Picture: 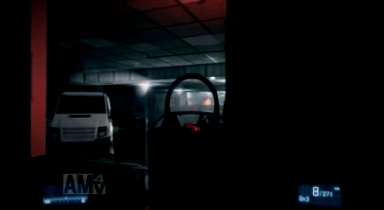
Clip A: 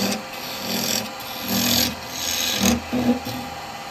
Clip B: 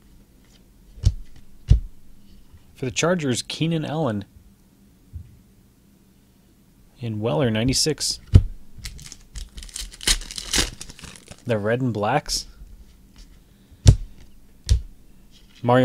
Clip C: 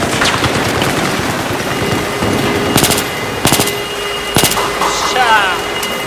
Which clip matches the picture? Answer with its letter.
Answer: C